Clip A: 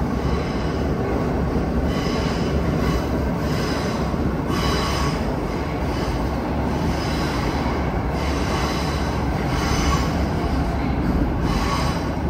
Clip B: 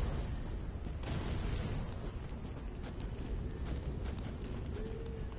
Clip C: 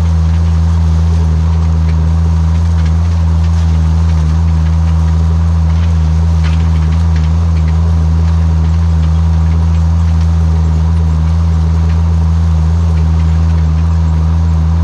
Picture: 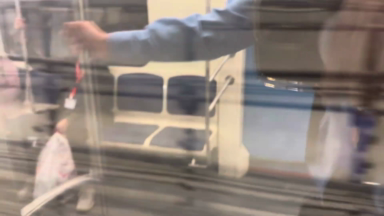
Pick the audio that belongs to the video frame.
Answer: A